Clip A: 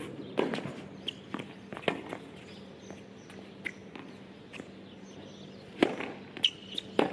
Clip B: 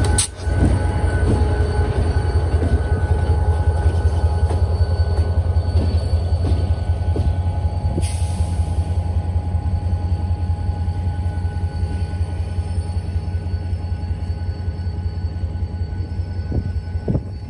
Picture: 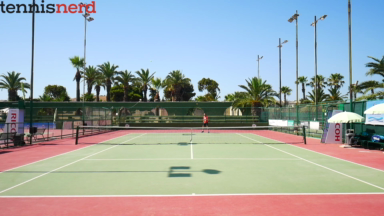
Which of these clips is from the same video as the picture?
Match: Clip A